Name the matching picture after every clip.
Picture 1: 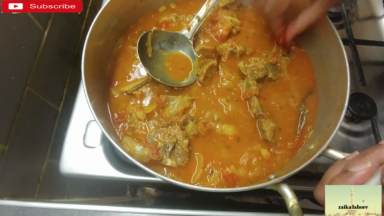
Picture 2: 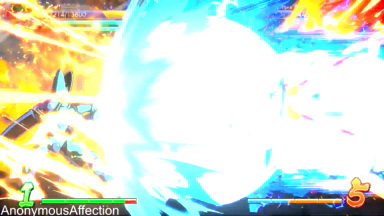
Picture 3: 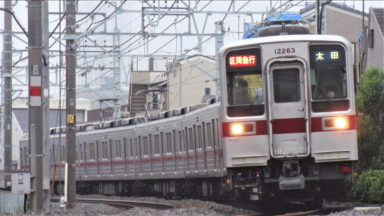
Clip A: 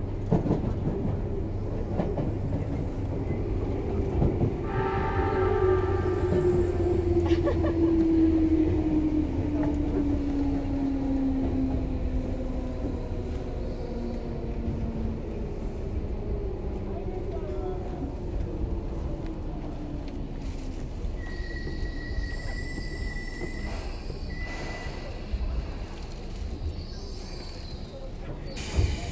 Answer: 3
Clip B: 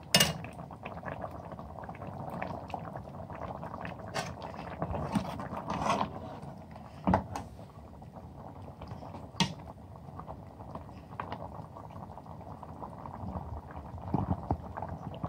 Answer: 1